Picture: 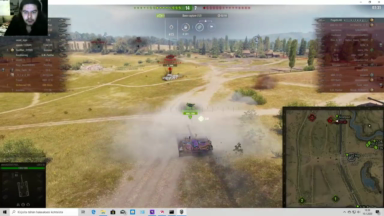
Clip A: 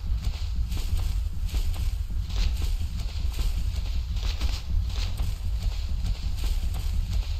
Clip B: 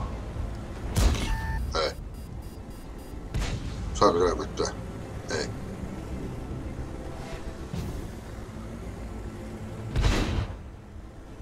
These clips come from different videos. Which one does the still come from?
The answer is B